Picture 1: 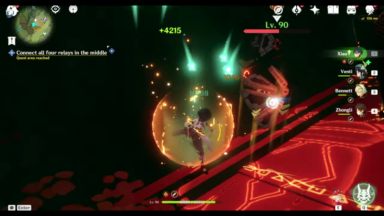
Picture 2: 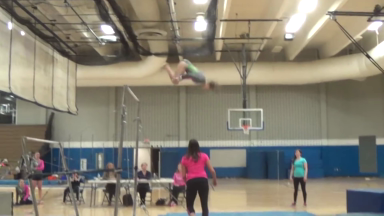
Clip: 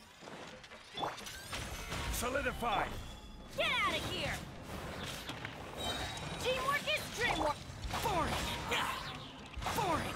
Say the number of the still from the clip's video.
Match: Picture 1